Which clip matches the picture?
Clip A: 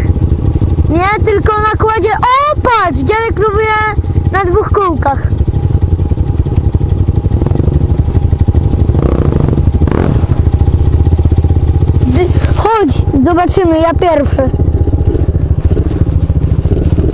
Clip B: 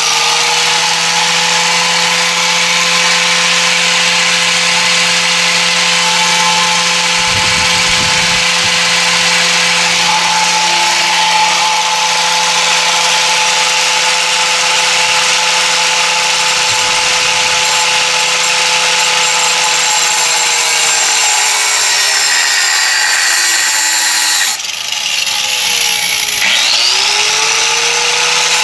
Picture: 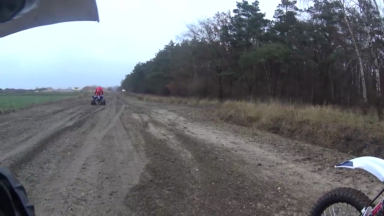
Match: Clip A